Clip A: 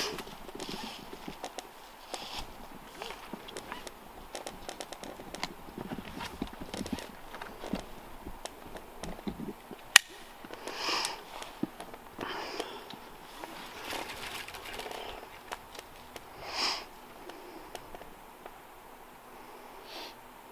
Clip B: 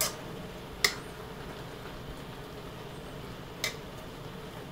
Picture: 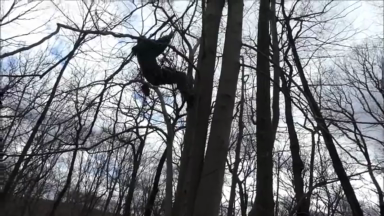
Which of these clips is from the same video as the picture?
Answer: A